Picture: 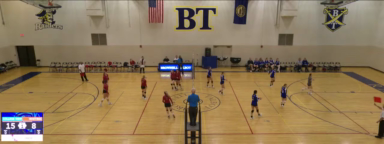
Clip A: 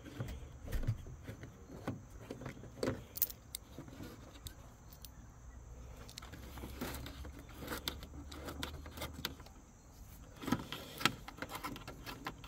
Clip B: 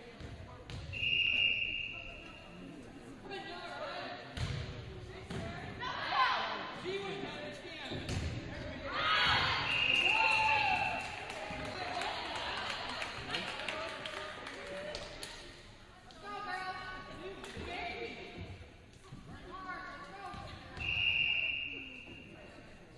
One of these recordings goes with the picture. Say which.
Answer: B